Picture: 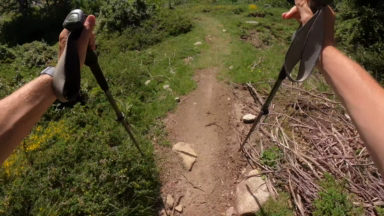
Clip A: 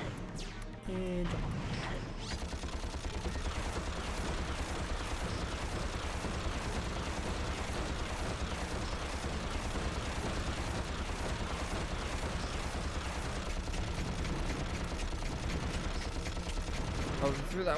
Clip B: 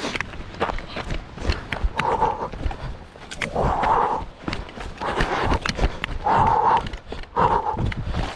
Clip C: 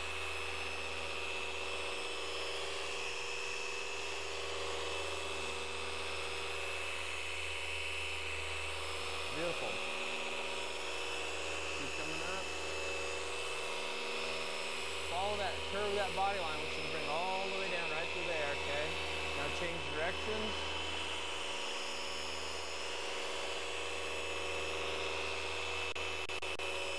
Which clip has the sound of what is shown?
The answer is B